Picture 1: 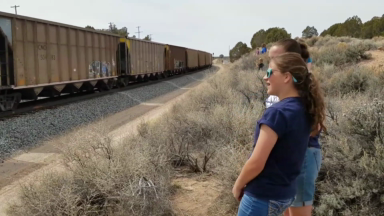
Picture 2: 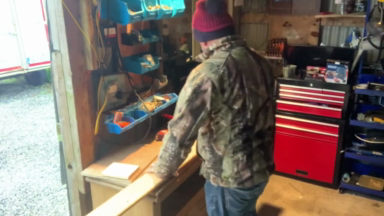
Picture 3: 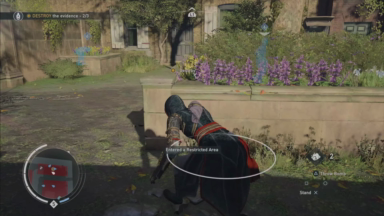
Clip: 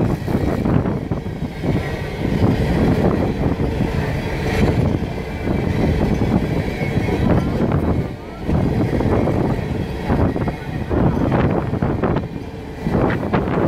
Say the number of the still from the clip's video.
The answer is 1